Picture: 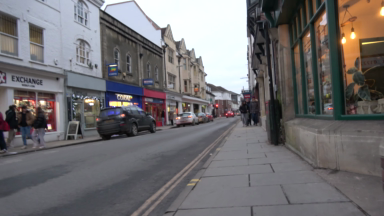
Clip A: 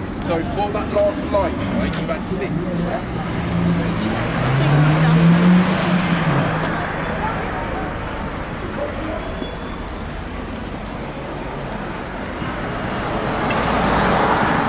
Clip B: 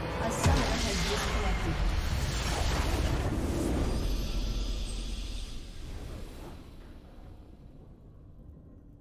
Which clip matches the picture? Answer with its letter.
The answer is A